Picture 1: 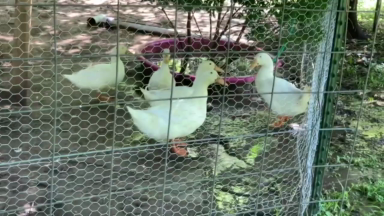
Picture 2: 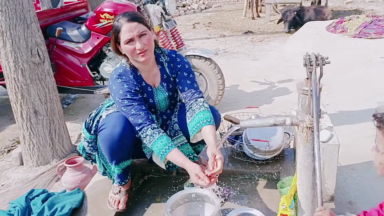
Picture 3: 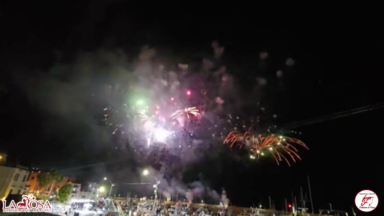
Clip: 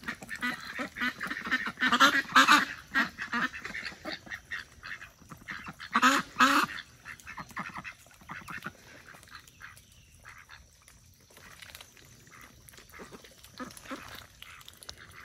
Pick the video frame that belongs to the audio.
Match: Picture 1